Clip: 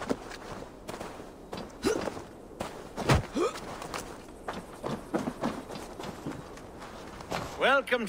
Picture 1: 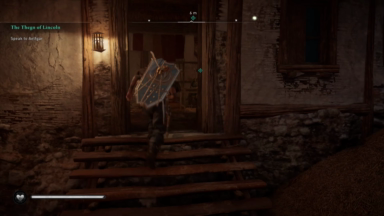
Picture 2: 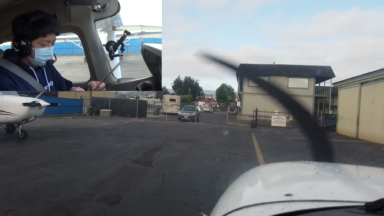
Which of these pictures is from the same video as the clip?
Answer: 1